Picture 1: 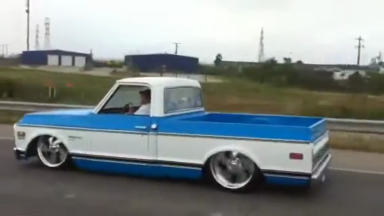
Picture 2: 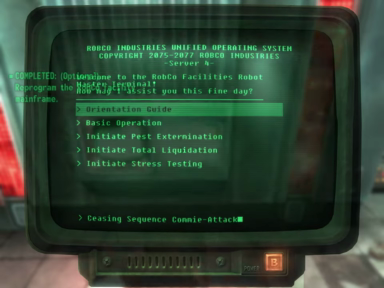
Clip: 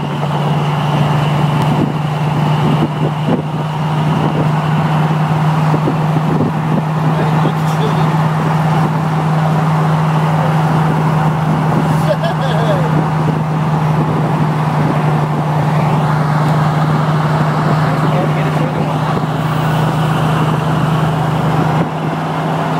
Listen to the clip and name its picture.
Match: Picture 1